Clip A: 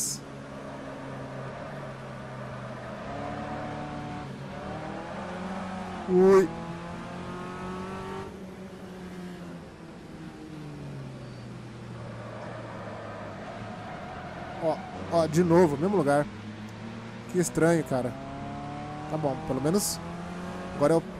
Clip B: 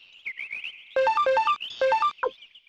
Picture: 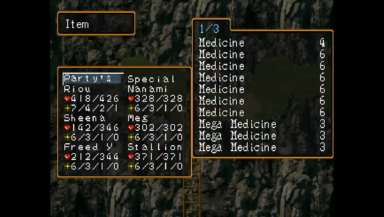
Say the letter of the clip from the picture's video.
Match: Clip B